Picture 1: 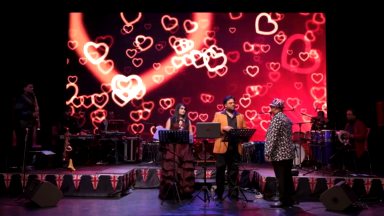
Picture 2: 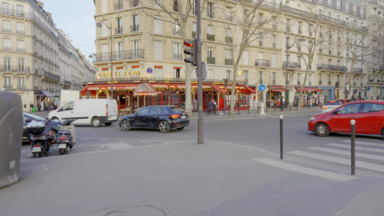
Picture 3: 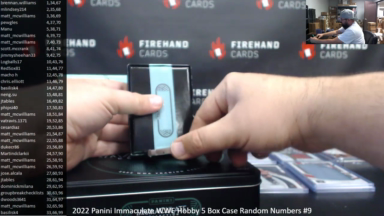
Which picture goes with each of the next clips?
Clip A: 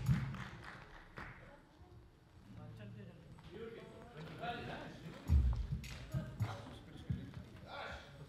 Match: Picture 1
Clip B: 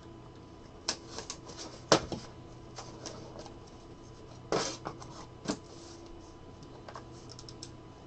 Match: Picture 3